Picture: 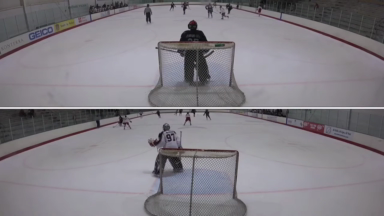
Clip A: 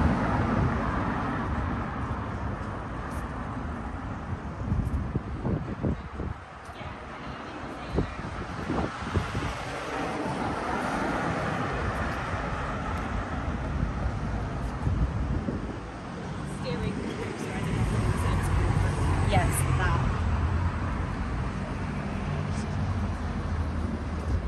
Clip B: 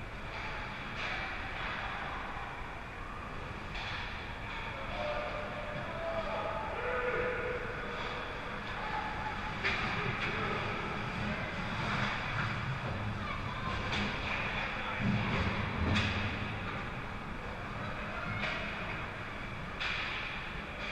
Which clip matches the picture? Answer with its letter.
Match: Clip B